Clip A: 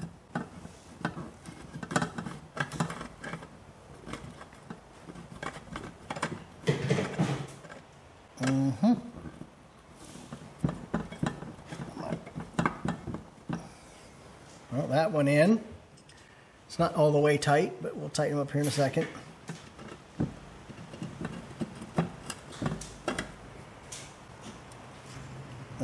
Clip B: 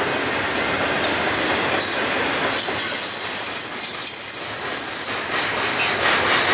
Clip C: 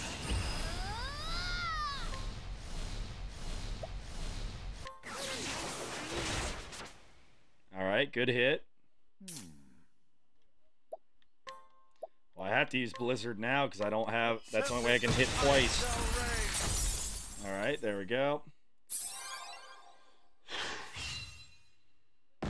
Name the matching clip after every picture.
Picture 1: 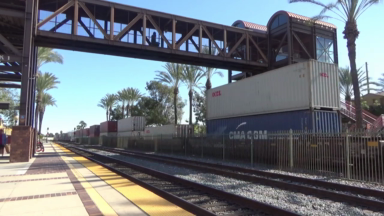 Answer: B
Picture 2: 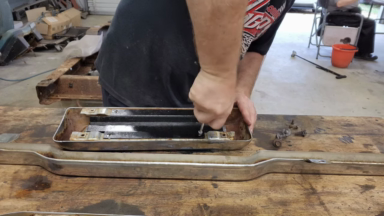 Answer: A